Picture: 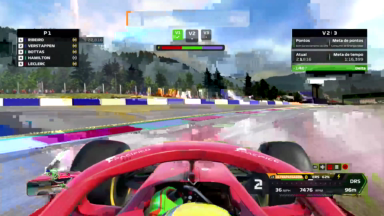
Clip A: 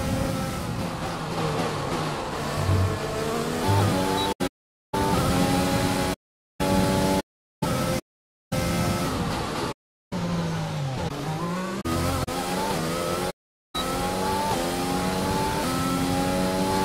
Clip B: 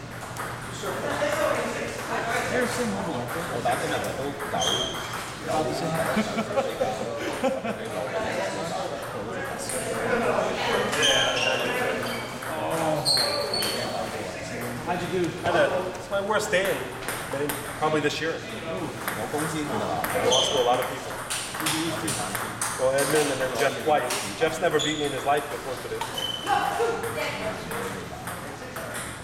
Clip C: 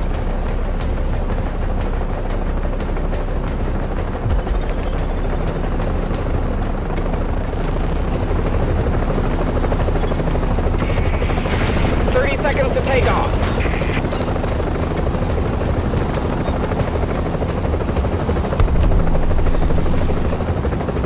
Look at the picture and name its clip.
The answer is A